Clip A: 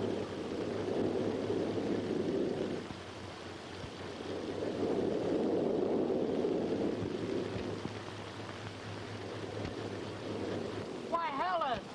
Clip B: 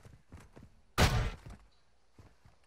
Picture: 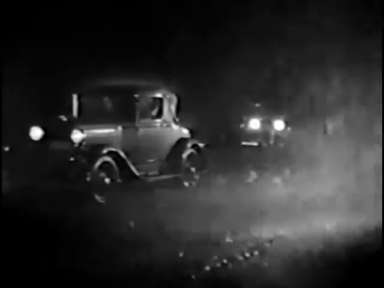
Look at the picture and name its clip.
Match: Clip A